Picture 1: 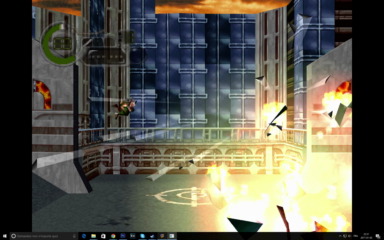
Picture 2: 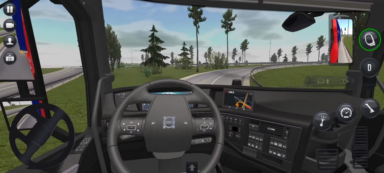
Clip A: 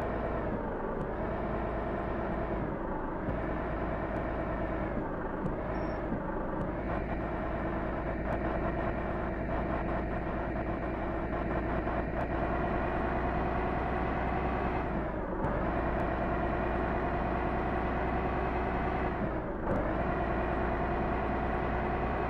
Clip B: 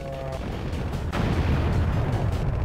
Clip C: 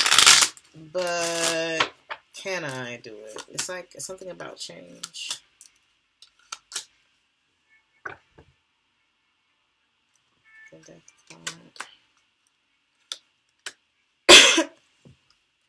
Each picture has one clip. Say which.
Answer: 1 B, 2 A